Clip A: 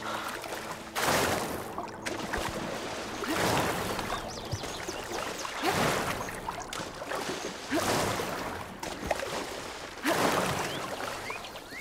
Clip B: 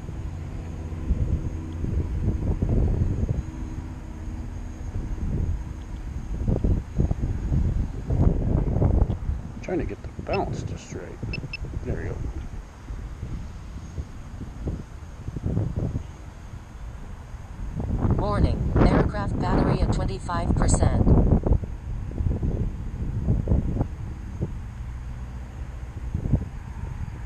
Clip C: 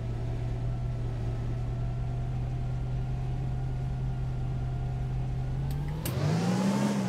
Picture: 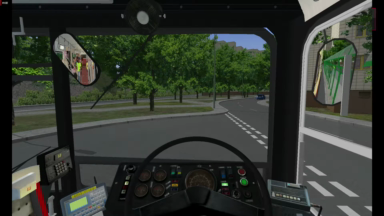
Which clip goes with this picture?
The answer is C